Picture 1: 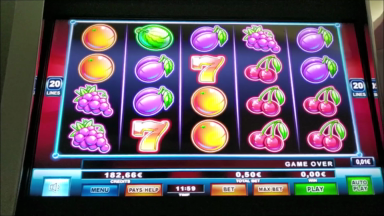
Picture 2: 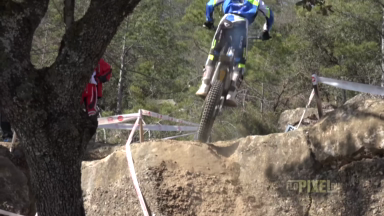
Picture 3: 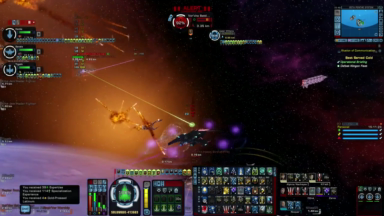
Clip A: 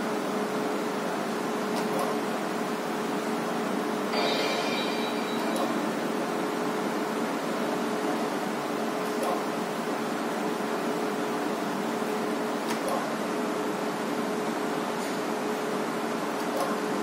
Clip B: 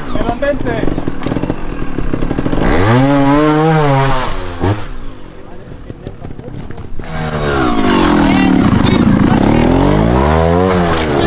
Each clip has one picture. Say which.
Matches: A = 1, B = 2